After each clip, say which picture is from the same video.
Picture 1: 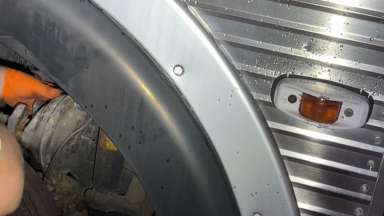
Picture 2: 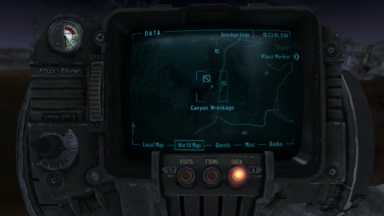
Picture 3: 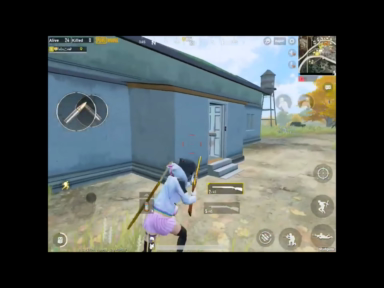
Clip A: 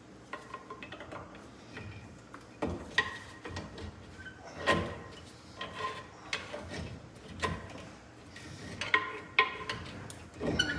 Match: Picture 1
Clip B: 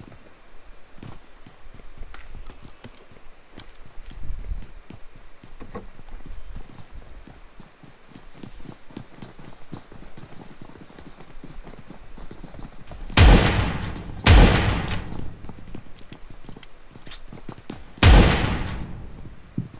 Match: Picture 3